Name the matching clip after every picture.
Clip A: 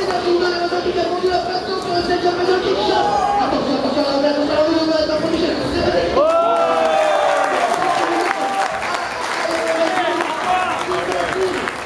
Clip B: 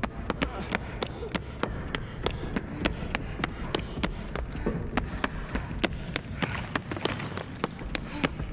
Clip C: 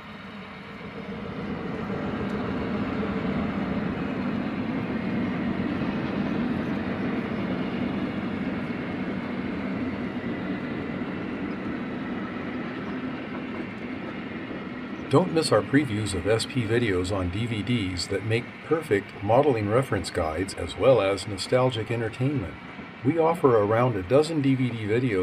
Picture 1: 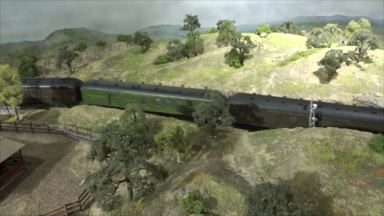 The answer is C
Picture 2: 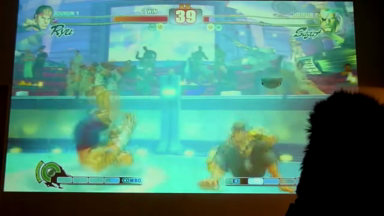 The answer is A